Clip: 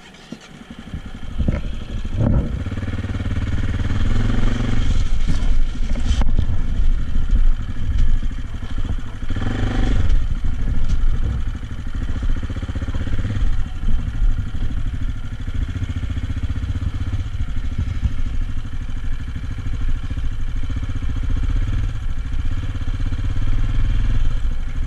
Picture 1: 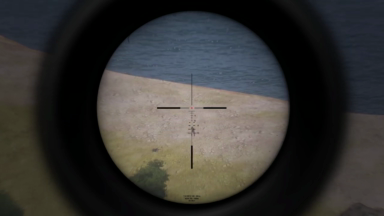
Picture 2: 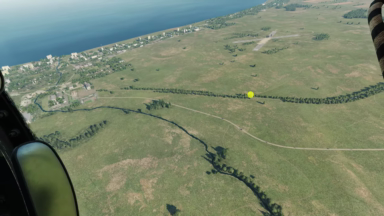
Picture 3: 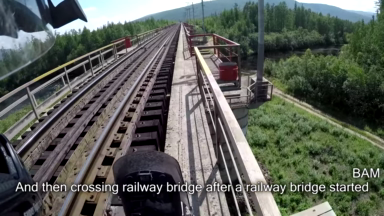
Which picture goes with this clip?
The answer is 3